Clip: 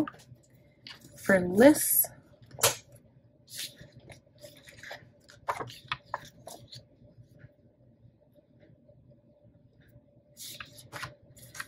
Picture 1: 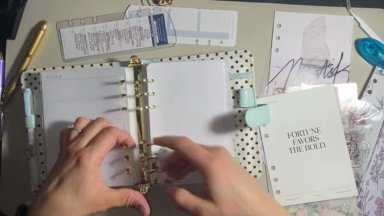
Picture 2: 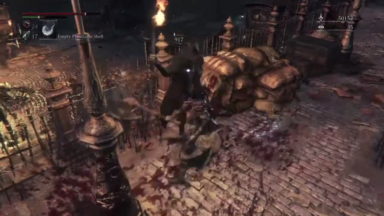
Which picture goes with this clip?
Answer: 1